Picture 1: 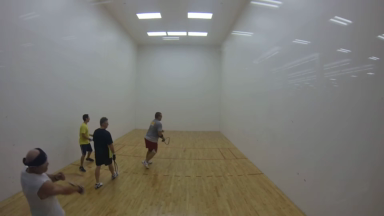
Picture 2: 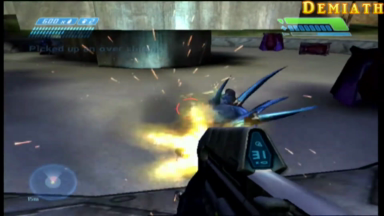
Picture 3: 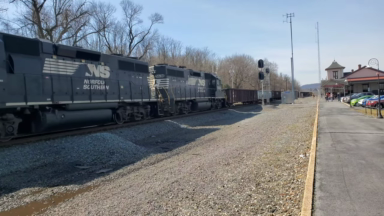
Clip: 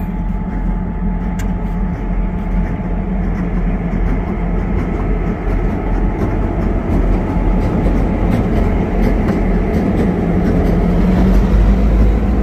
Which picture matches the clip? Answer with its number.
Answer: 3